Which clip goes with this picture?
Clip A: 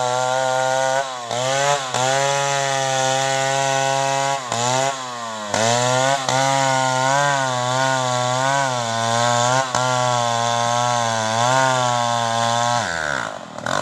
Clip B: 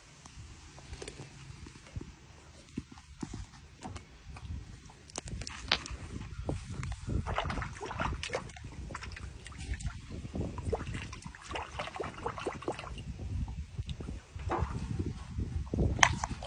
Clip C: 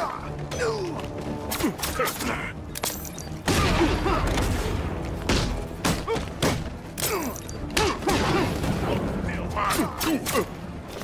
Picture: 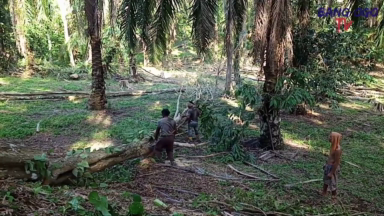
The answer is A